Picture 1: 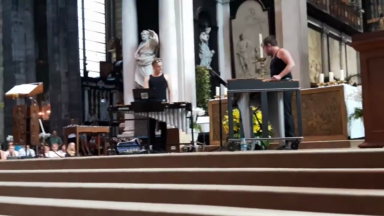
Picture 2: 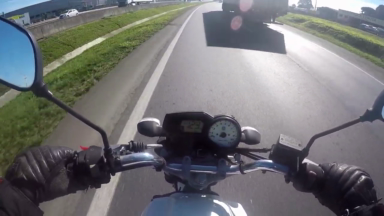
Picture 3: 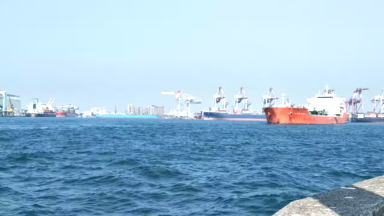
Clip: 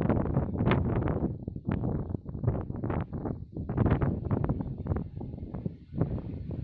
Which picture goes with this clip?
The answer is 3